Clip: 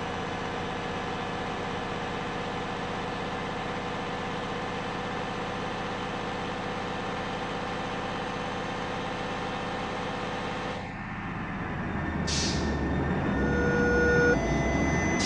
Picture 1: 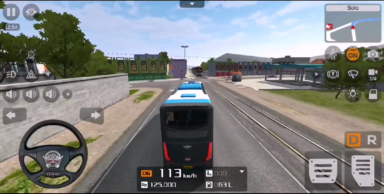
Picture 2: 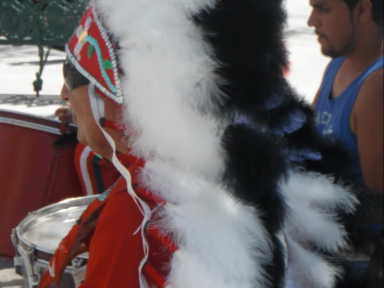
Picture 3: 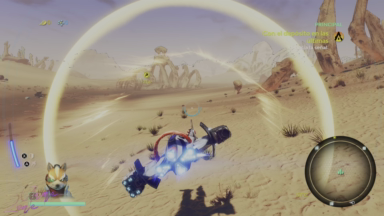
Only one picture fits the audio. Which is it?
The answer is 1